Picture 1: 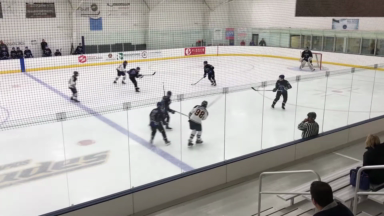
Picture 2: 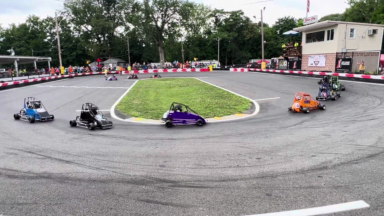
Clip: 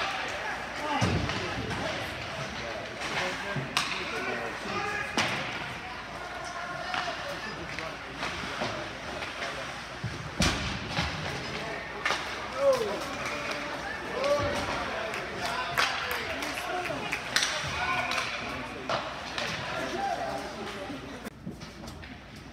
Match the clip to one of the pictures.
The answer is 1